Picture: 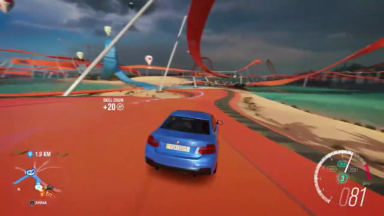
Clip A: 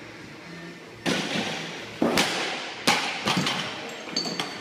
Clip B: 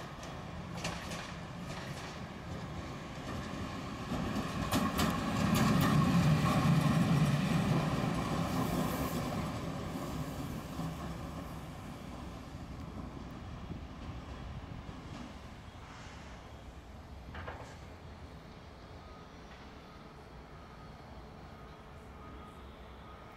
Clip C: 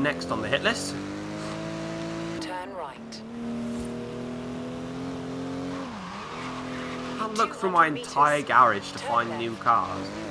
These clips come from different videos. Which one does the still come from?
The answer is C